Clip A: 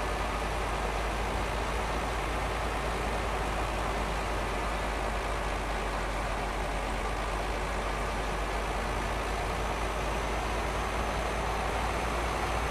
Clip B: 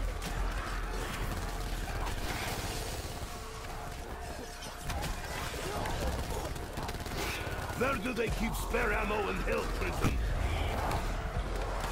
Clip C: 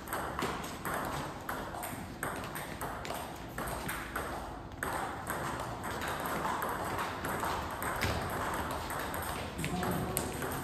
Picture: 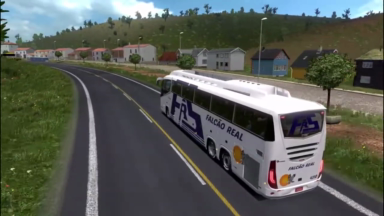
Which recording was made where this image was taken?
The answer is A